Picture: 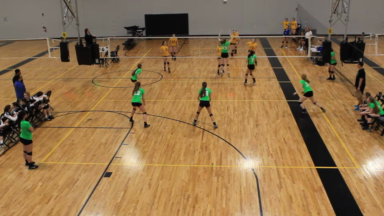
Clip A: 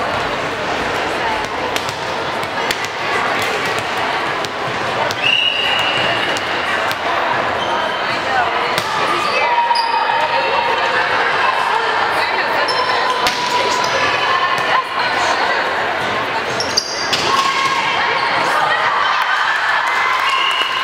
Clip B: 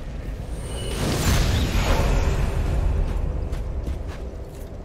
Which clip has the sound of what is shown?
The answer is A